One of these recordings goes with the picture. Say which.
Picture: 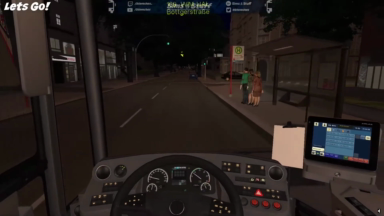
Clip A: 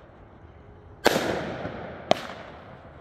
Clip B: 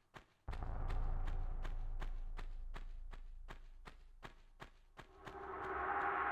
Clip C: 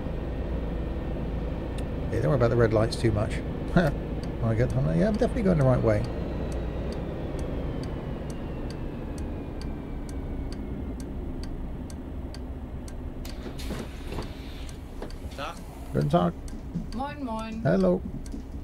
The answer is C